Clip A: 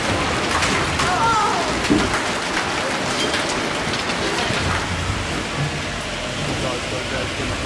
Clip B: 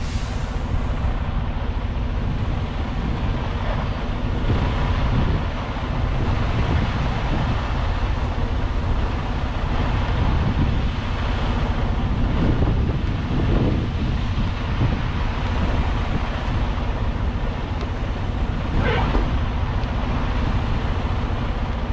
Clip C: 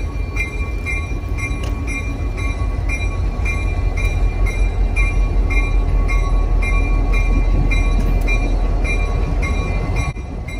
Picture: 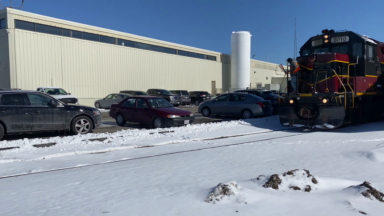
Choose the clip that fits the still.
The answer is C